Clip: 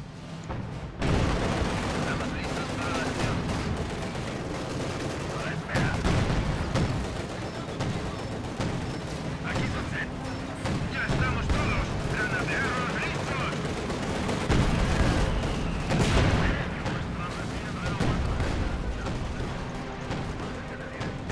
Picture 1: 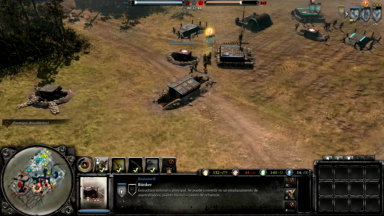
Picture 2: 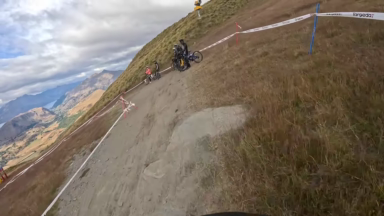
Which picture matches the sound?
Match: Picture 1